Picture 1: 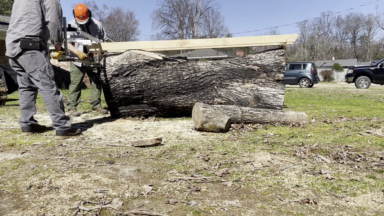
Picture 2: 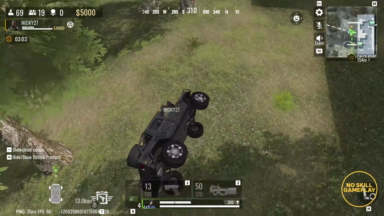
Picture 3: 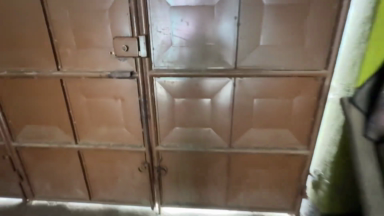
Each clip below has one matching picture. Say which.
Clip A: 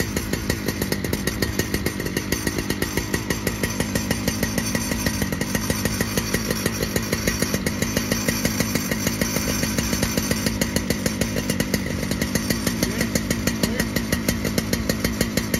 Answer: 1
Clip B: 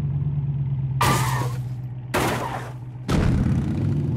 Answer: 2